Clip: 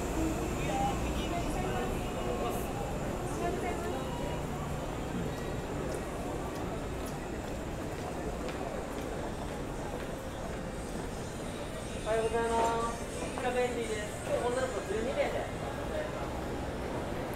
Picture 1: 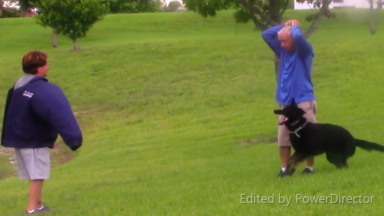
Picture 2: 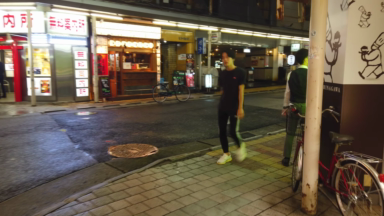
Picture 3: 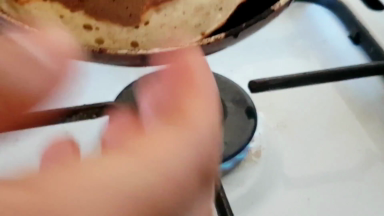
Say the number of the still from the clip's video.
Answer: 2